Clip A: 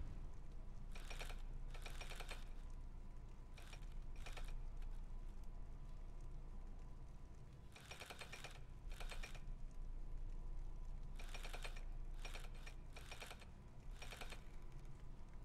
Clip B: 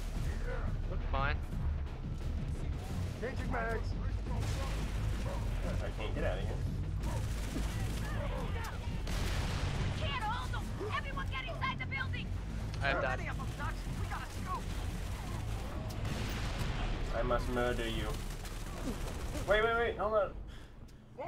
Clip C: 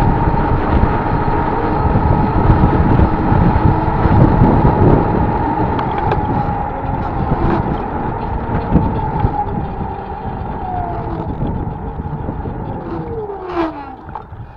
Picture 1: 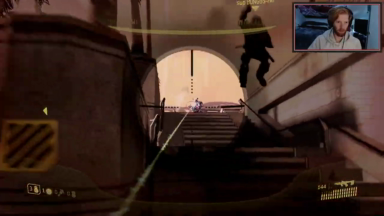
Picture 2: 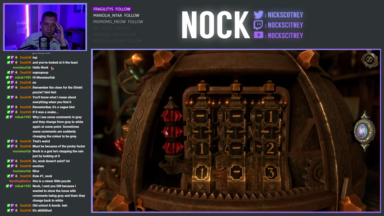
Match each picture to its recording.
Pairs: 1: B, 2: A